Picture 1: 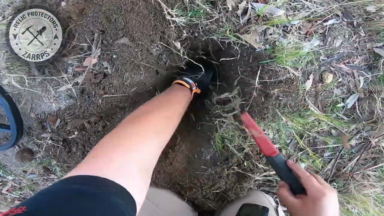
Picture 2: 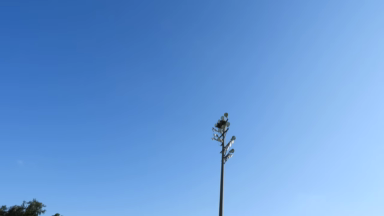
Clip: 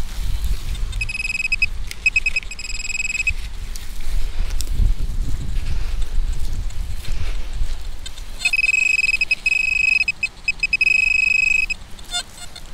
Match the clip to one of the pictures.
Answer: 1